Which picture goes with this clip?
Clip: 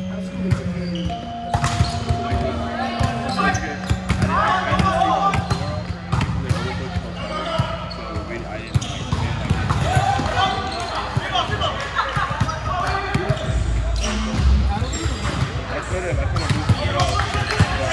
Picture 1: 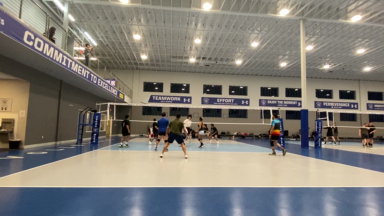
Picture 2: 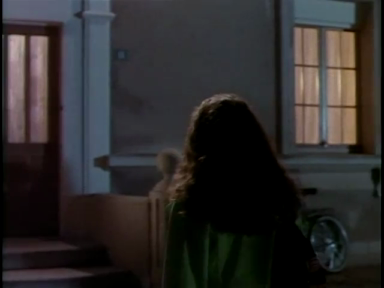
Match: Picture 1